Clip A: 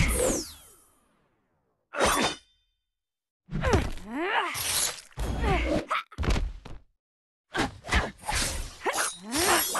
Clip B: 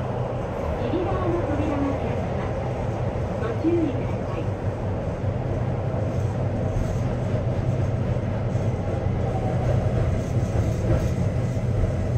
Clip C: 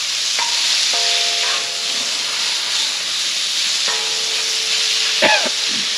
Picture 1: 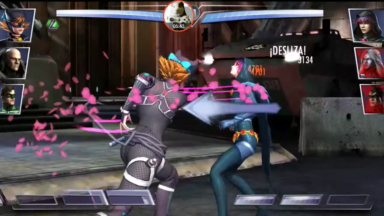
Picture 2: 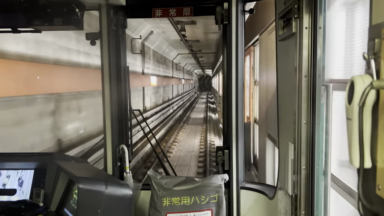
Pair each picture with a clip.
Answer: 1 A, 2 B